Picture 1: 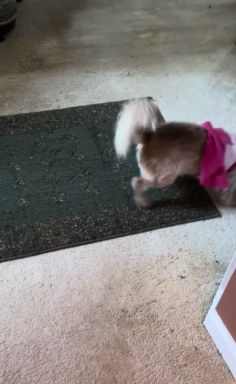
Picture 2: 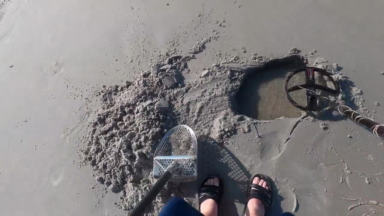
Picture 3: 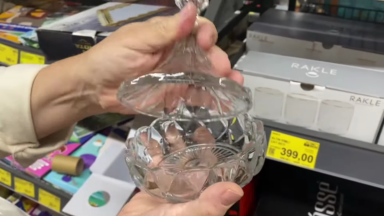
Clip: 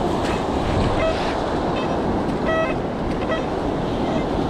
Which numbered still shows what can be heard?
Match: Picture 2